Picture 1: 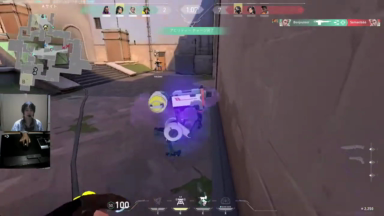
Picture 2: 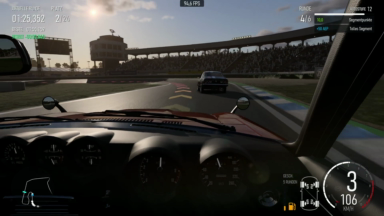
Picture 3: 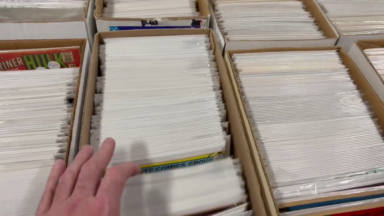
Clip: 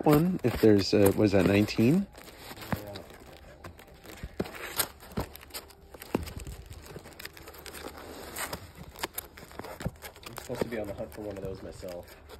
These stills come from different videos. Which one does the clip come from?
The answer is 3